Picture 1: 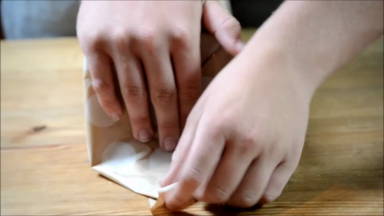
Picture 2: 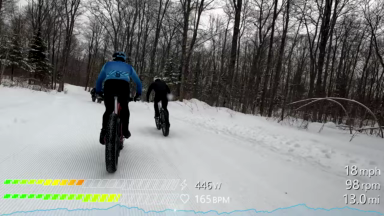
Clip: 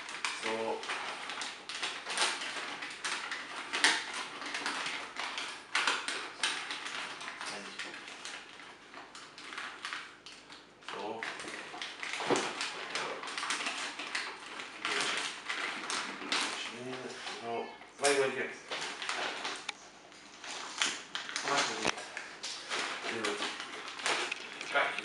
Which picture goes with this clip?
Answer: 1